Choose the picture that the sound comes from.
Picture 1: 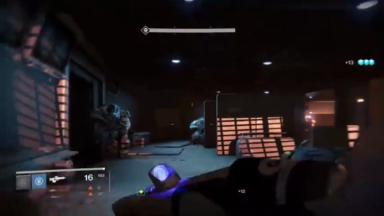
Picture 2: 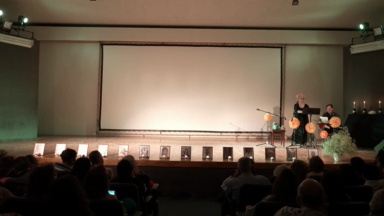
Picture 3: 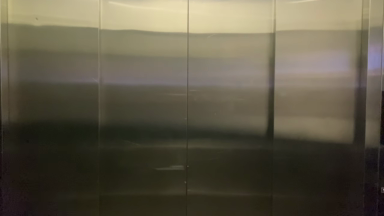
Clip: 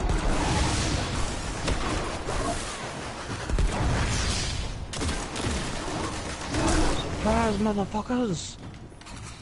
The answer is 1